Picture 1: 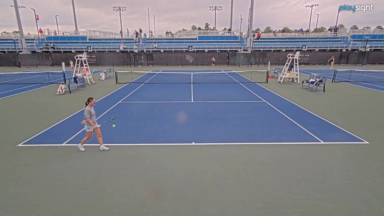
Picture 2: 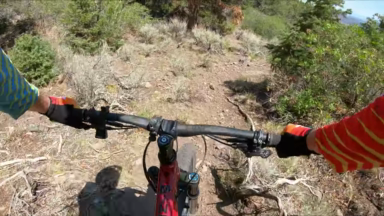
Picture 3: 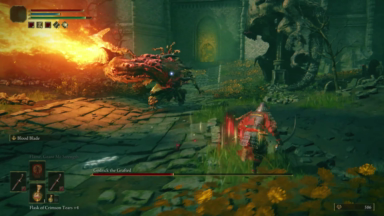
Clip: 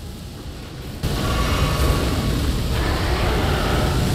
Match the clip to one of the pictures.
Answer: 3